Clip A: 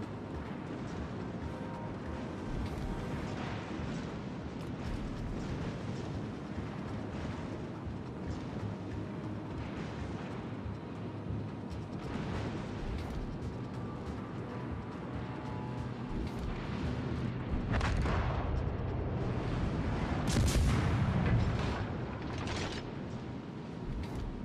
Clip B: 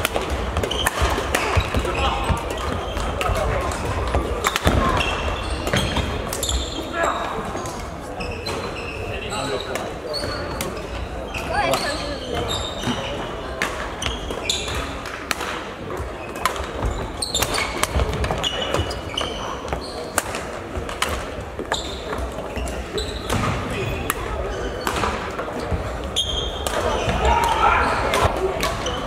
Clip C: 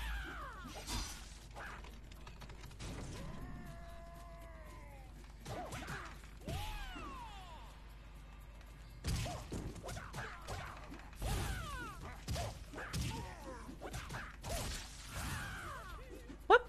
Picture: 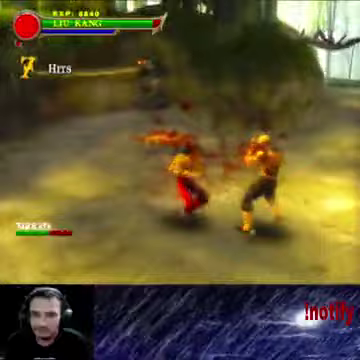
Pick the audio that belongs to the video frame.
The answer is C